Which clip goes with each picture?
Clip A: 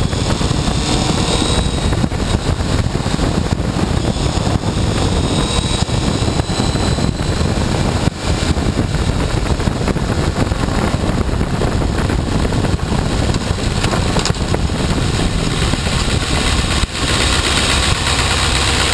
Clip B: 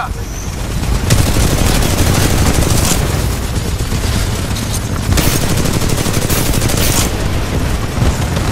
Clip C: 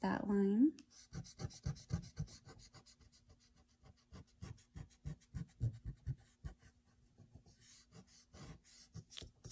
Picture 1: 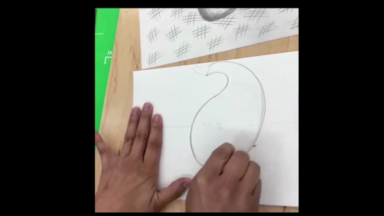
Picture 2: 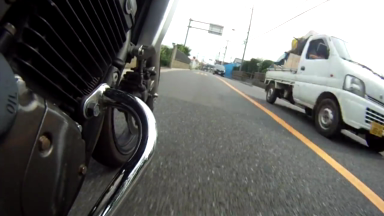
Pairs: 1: C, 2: A